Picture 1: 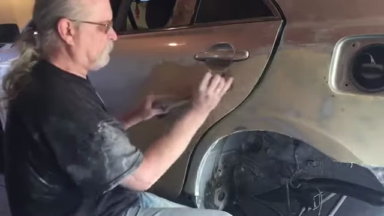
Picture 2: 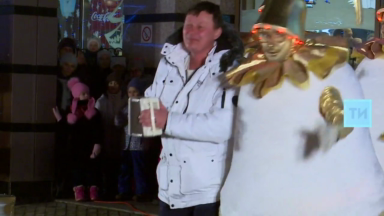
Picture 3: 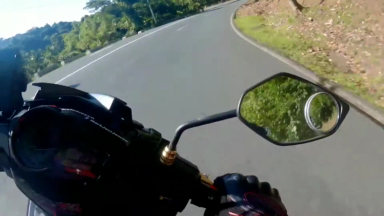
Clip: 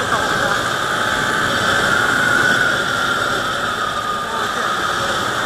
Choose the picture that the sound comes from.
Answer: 3